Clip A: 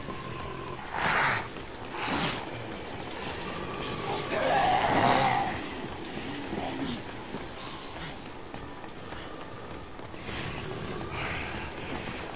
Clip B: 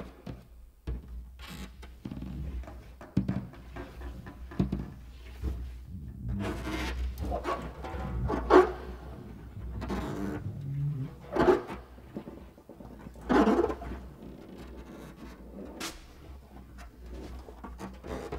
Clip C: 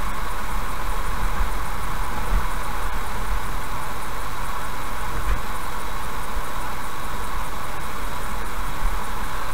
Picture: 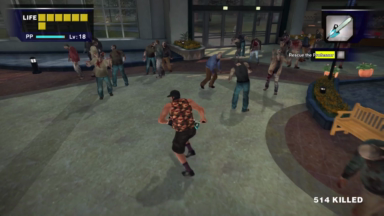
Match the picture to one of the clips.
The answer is A